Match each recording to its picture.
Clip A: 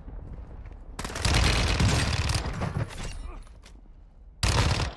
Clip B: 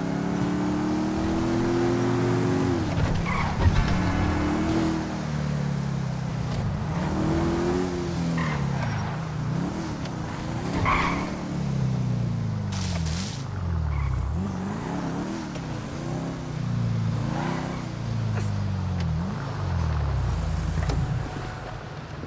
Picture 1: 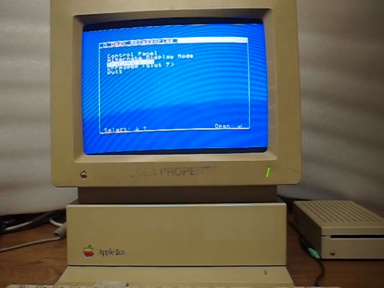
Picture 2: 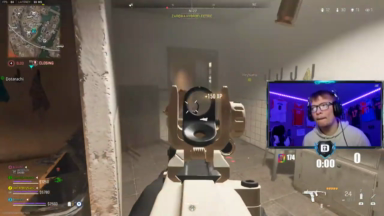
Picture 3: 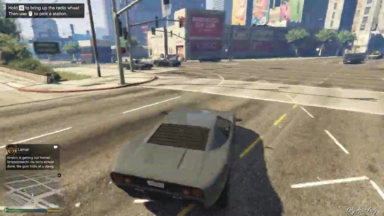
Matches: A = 2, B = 3